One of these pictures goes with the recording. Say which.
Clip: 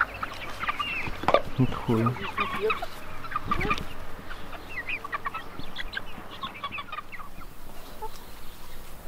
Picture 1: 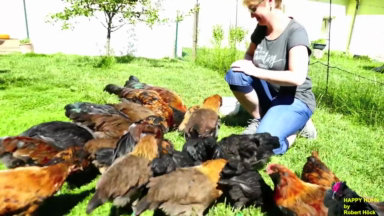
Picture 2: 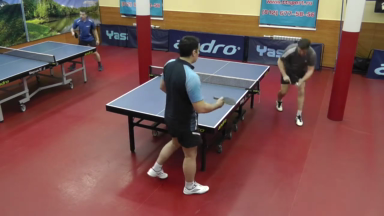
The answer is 1